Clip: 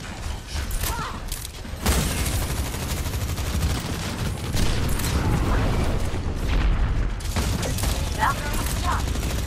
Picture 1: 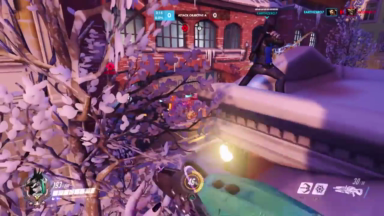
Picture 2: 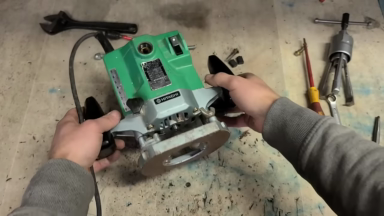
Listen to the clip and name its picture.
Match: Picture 1